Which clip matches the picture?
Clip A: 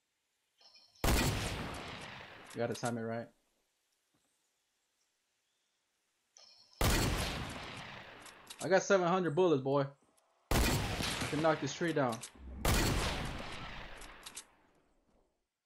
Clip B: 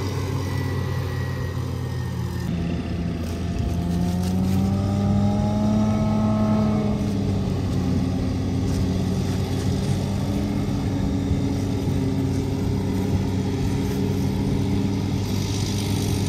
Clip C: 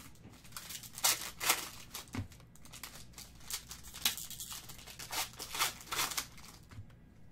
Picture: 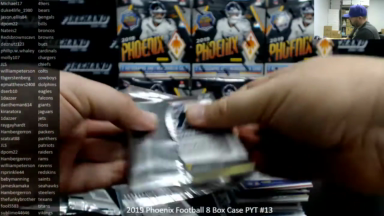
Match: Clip C